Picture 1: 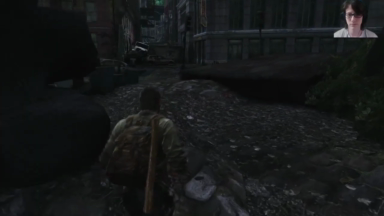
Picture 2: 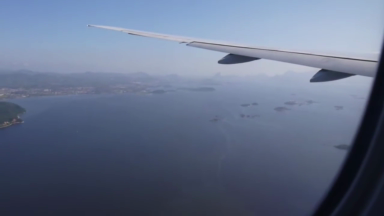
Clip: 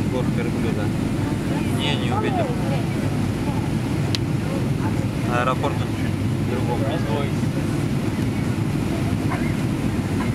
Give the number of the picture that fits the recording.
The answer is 2